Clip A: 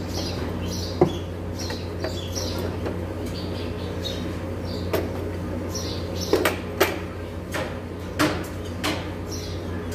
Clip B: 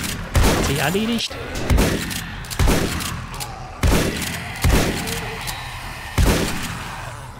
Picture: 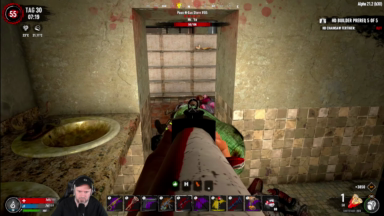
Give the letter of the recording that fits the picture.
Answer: B